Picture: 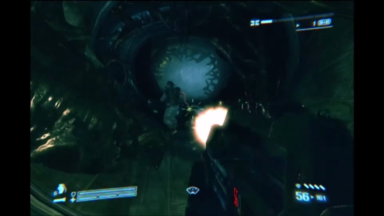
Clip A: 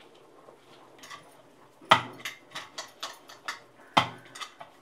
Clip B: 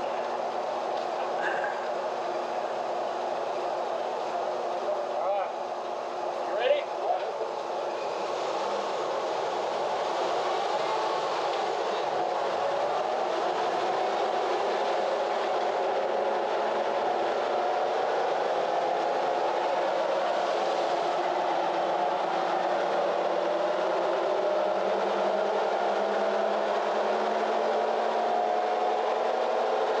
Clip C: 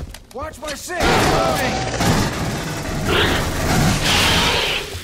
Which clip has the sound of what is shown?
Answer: C